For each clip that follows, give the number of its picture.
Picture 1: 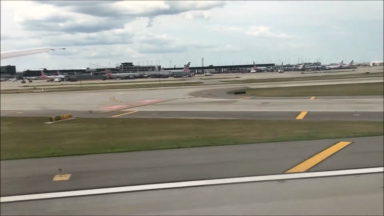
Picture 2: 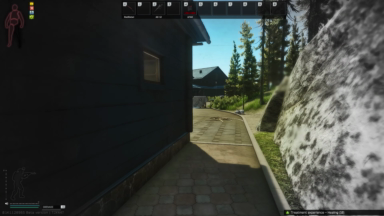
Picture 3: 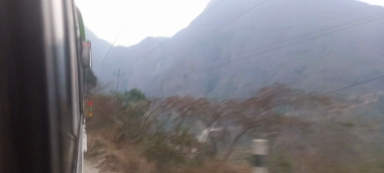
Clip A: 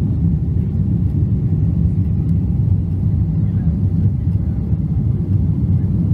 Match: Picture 1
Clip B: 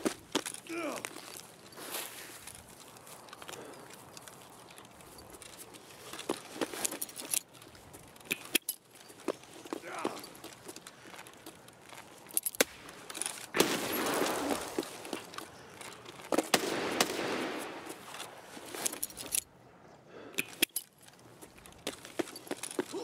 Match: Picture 2